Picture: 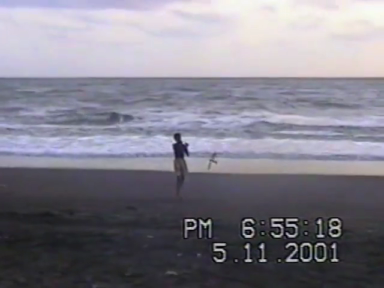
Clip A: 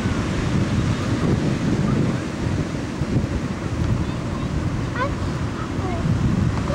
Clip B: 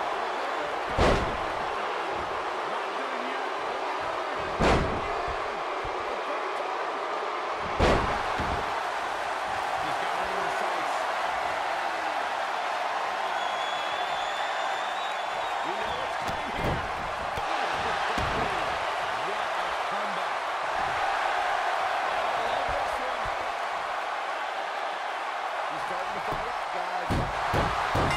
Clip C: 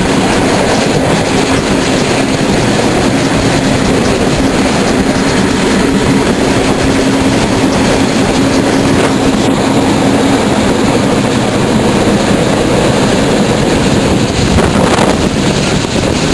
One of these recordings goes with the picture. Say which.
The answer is A